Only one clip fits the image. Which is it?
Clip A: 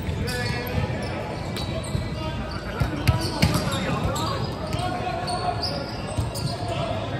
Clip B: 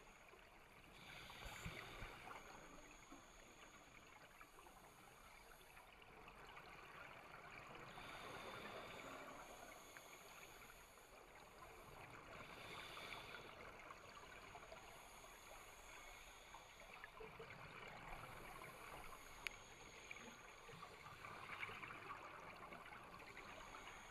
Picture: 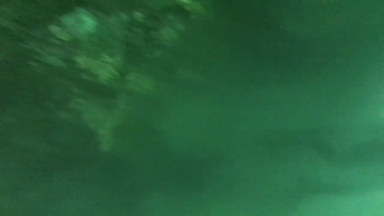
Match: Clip B